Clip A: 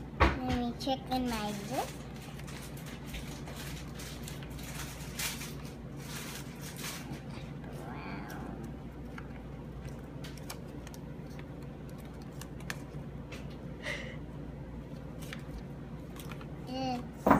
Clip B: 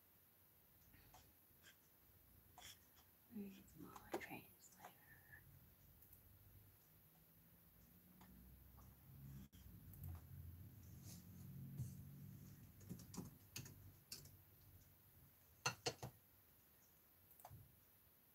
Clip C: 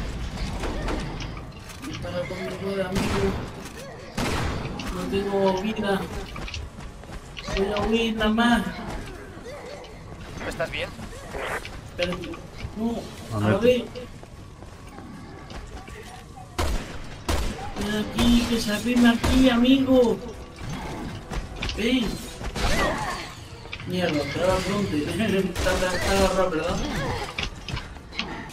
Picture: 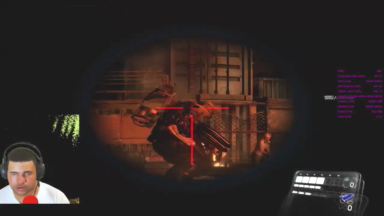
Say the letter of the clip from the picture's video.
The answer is C